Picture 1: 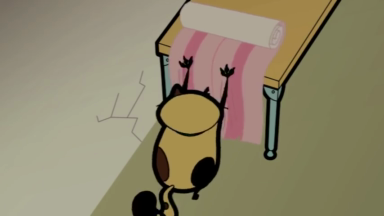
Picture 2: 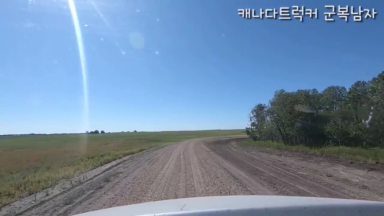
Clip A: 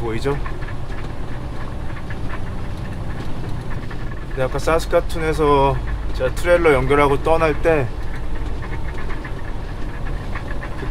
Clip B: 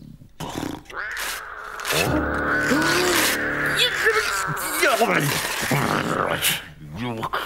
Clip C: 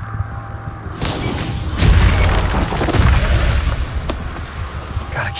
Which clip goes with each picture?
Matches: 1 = B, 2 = A